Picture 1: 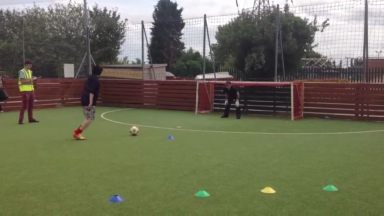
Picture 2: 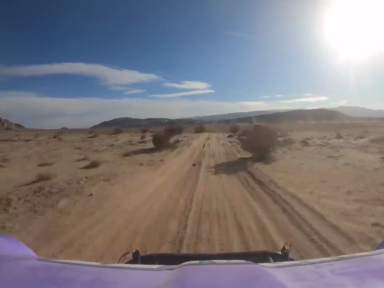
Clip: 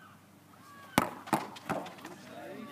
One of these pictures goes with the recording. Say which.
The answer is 1